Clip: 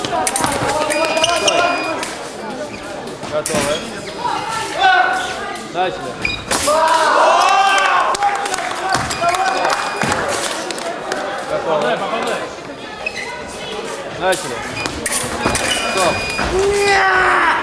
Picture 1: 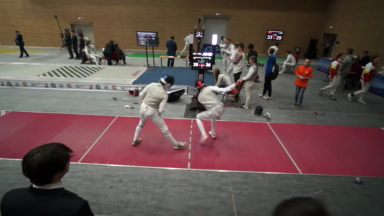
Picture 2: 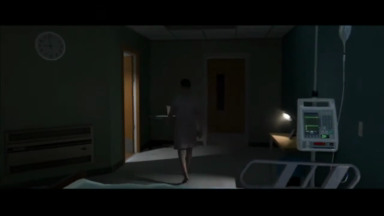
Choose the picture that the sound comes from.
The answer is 1